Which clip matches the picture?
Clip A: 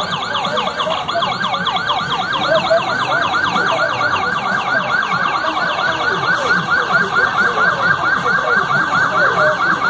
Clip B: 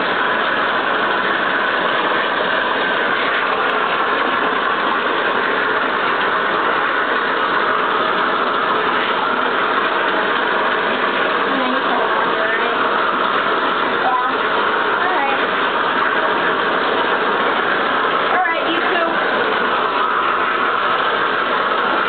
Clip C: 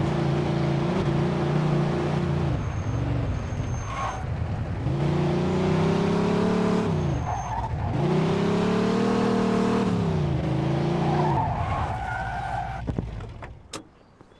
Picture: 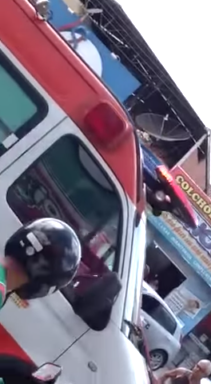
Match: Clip A